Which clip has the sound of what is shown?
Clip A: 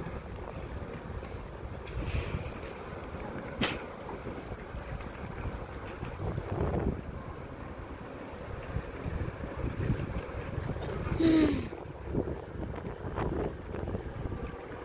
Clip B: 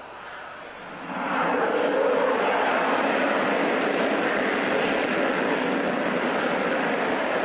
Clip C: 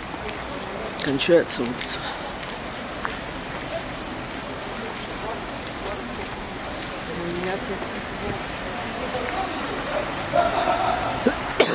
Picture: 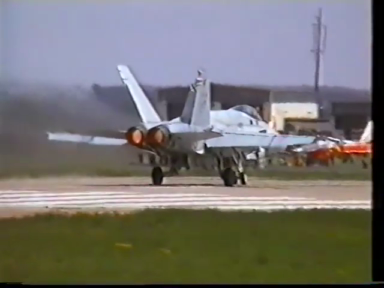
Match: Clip B